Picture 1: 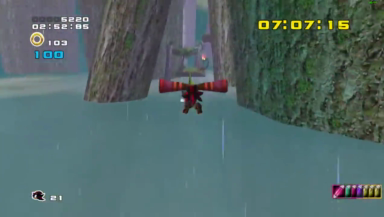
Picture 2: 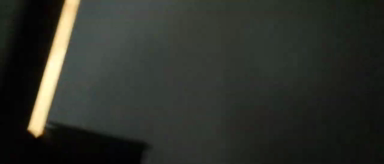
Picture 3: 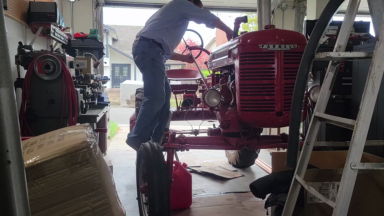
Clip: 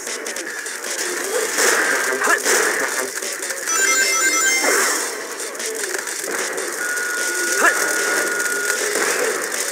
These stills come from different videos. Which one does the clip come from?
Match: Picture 1